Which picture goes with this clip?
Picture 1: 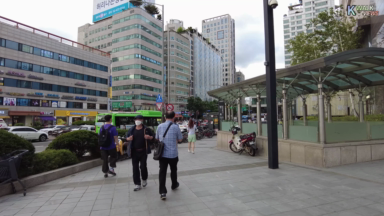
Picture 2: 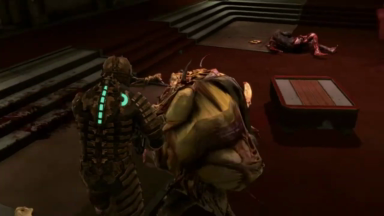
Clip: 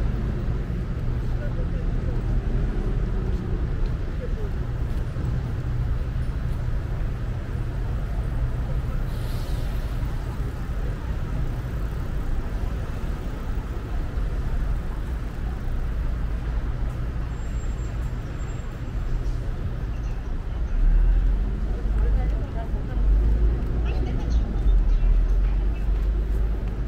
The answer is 1